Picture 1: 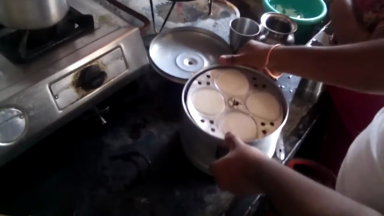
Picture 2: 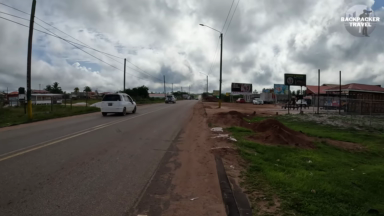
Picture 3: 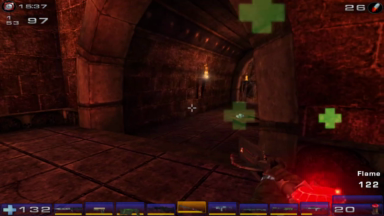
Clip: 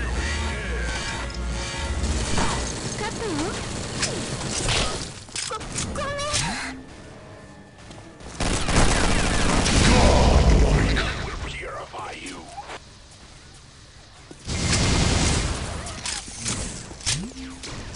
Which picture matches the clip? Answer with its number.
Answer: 3